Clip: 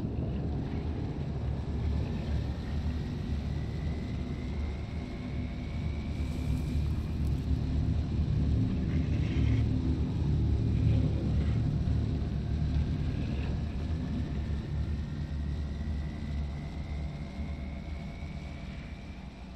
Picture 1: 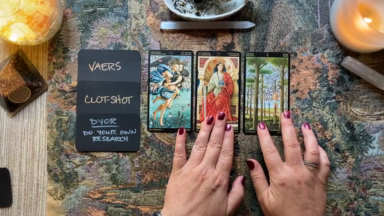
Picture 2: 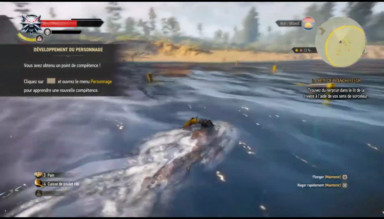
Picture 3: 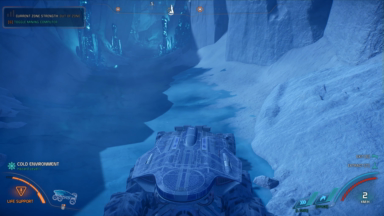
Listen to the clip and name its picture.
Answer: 3